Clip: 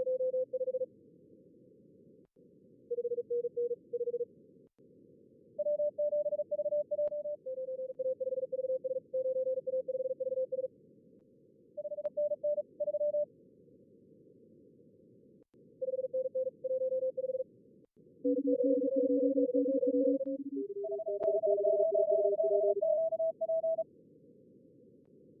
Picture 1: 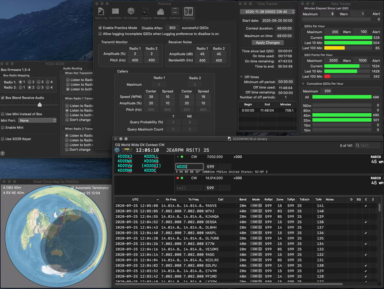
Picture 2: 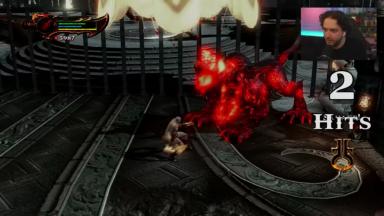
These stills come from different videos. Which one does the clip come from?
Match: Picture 1